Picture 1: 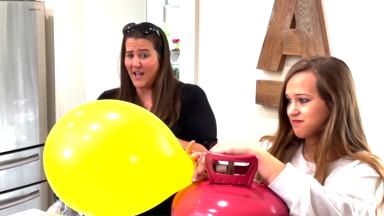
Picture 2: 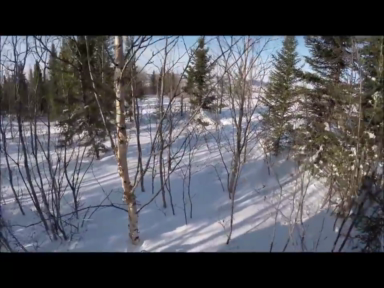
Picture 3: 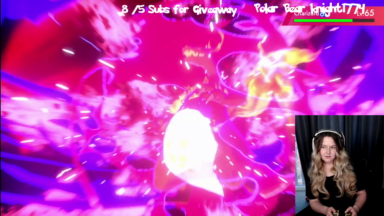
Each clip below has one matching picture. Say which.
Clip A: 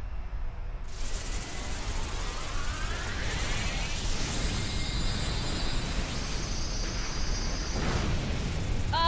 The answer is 3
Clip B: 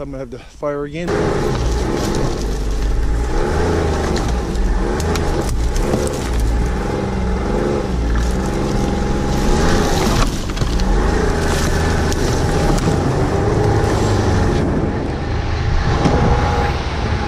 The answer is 2